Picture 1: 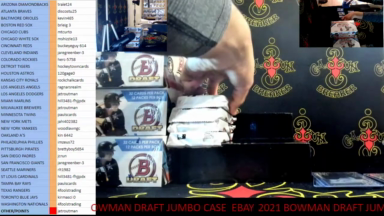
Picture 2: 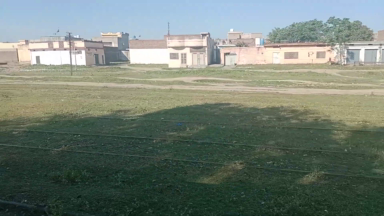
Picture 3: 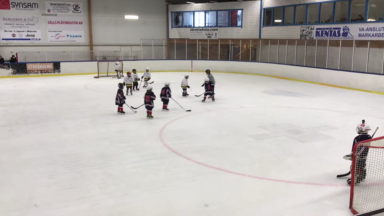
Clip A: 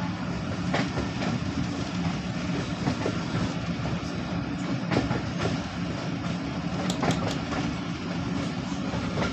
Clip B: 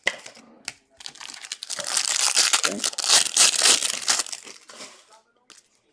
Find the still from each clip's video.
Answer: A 2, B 1